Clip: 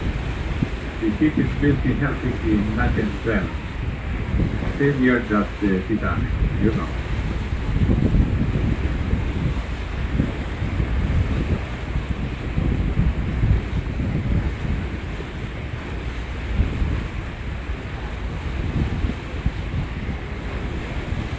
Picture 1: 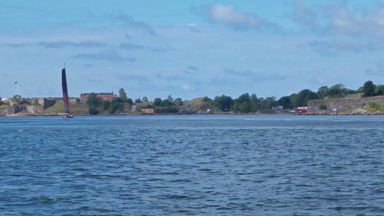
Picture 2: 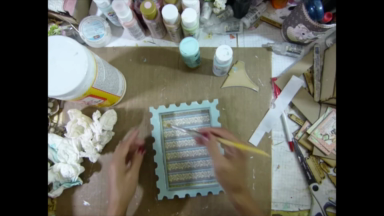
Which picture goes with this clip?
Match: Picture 1